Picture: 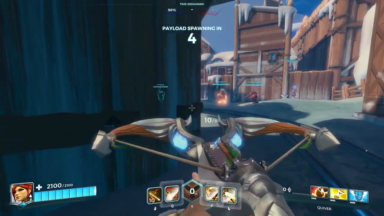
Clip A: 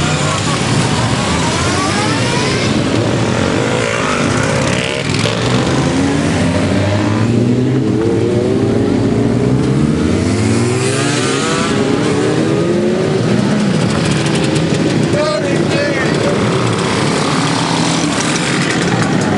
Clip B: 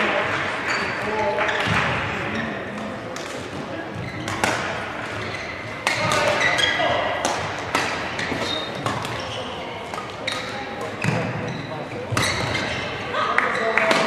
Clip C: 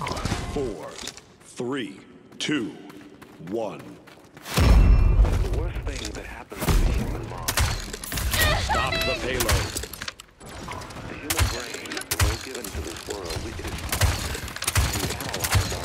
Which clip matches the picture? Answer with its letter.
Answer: C